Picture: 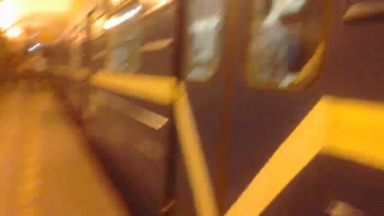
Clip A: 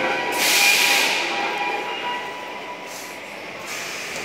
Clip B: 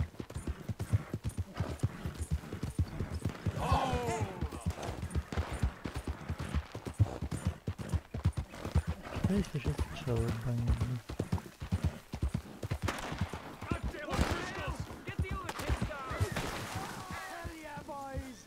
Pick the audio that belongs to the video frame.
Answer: A